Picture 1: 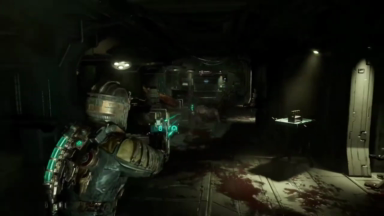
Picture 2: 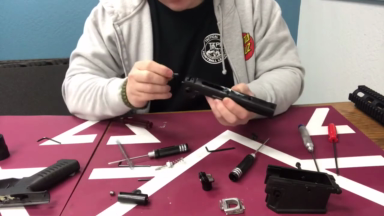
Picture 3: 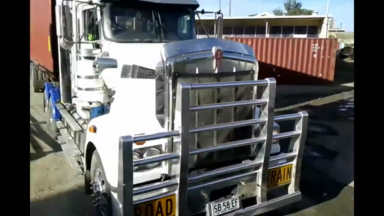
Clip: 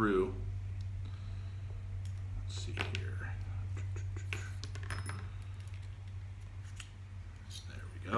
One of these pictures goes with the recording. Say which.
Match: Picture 2